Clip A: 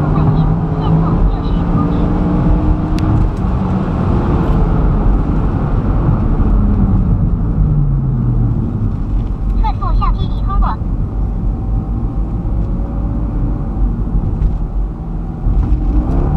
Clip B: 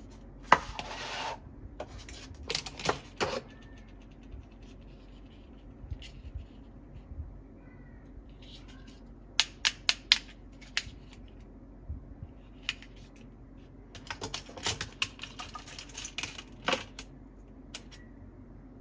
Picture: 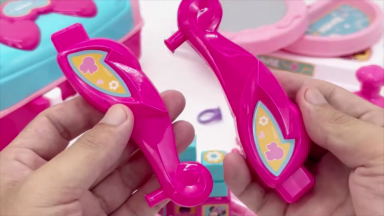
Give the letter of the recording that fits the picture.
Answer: B